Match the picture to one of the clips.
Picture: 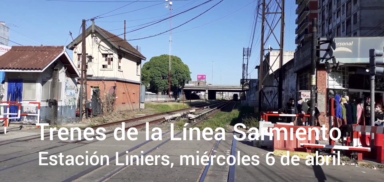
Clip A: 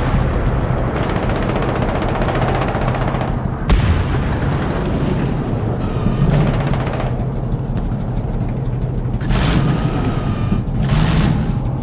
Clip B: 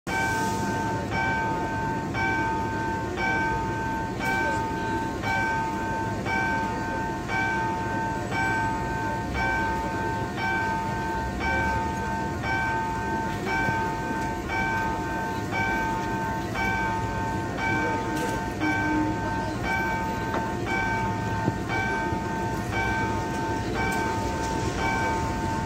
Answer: B